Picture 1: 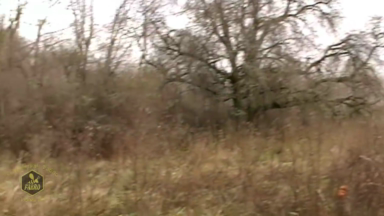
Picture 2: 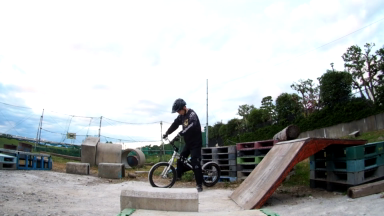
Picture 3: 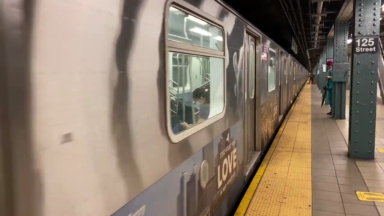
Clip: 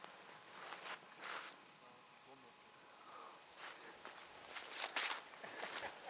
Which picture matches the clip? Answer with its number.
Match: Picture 1